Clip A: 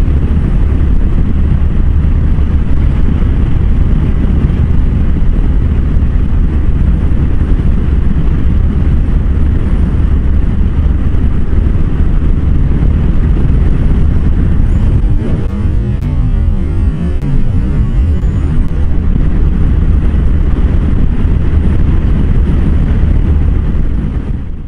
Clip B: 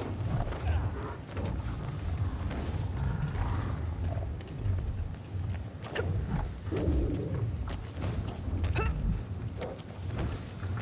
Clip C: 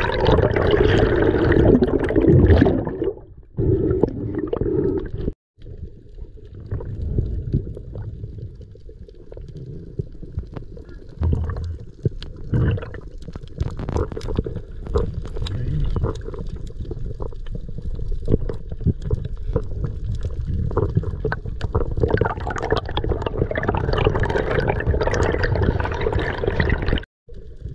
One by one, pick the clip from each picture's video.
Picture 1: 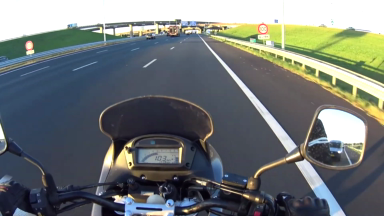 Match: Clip A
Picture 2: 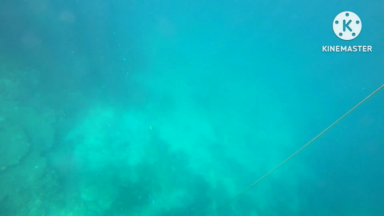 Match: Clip C